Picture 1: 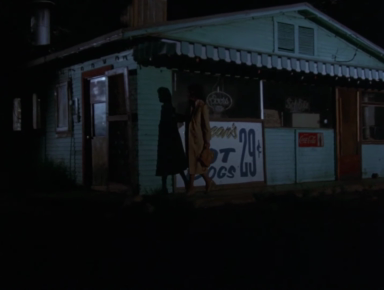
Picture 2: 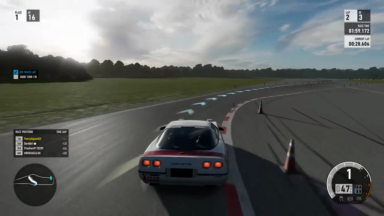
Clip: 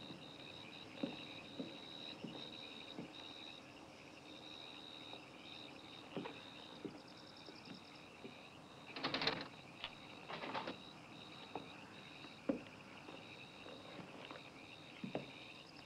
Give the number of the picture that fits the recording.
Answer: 1